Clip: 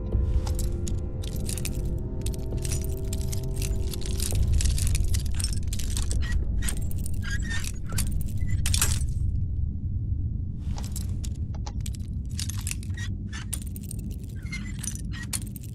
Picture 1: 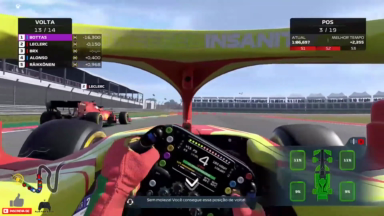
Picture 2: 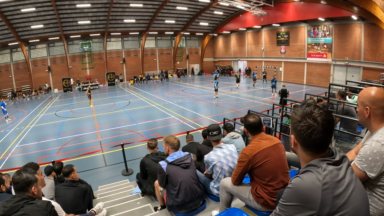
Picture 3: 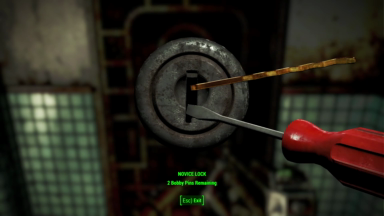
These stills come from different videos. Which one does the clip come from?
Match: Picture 3